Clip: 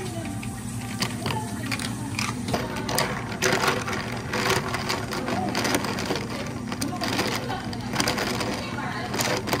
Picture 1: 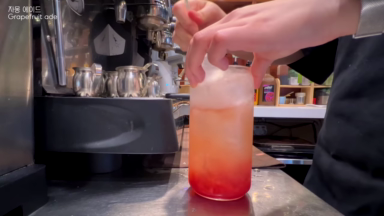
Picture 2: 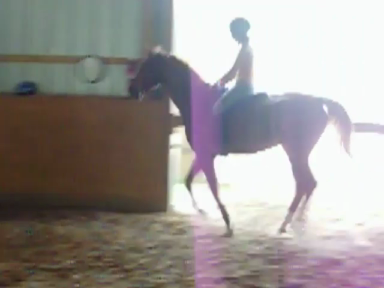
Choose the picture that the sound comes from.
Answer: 1